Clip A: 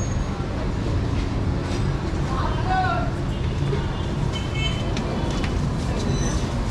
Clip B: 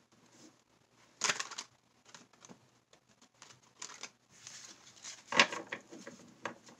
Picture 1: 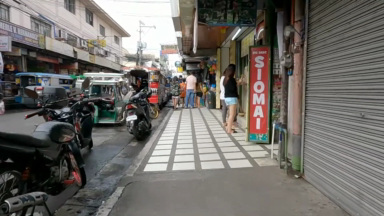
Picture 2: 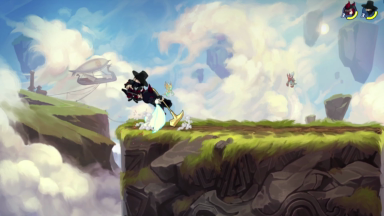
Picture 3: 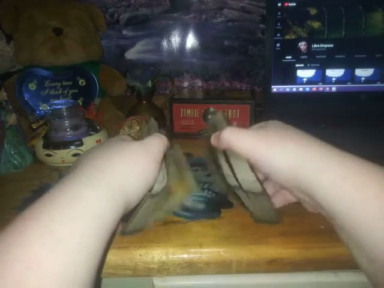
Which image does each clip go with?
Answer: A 1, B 3